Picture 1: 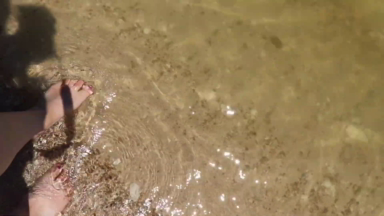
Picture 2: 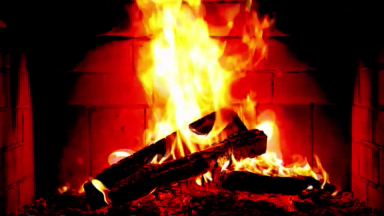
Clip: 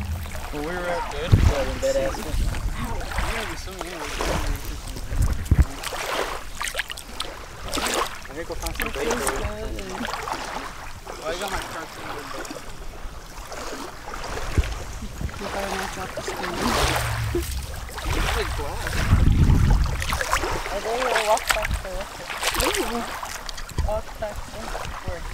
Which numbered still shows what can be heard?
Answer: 1